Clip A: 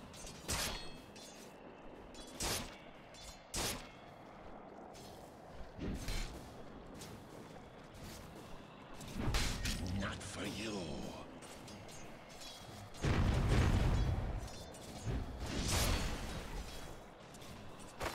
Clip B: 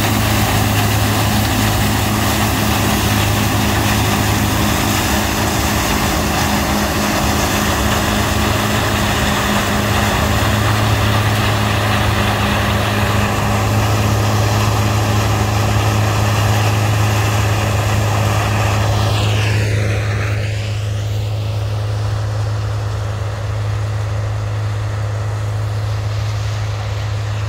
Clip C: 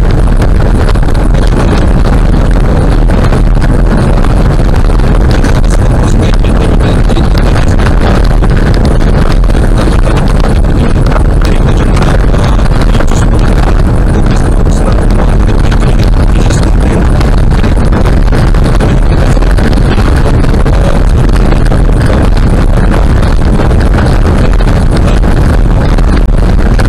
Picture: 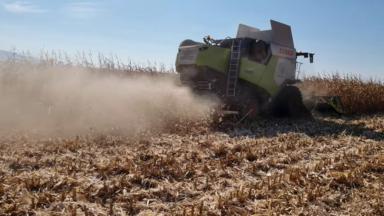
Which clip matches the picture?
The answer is B